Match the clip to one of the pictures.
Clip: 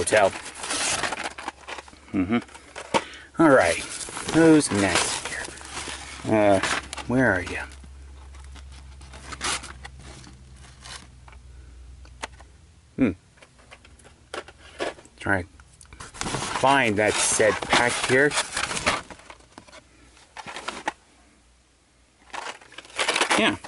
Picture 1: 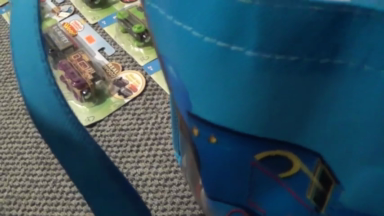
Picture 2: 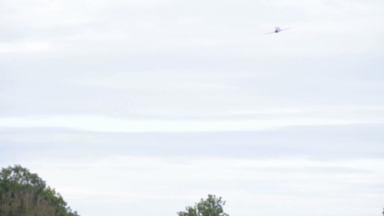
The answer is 1